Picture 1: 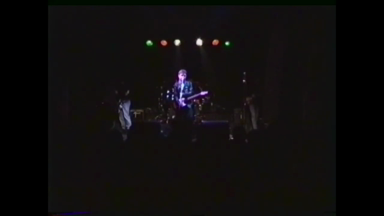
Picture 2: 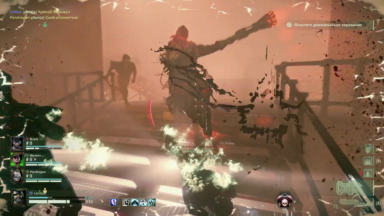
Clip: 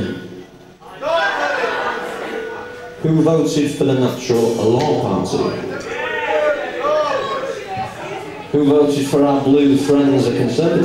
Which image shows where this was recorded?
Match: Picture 1